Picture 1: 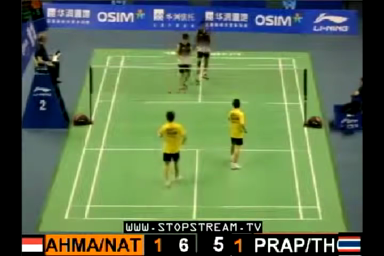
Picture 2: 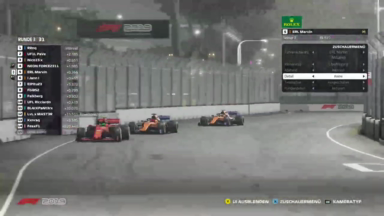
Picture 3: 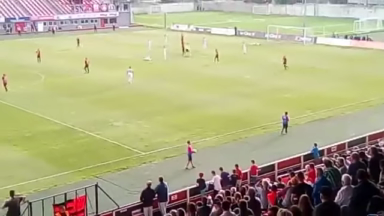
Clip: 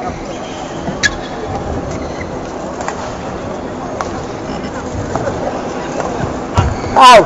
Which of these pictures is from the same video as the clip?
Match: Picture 1